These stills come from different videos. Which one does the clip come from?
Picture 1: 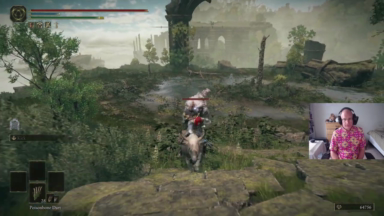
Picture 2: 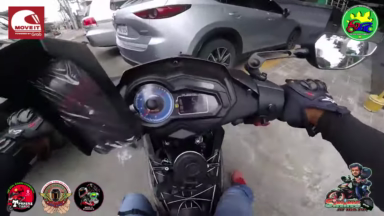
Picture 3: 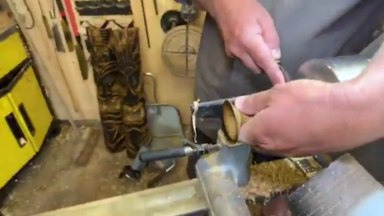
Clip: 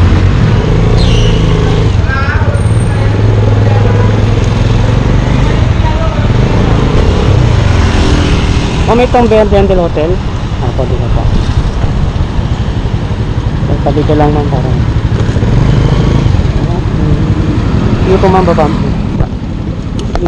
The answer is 2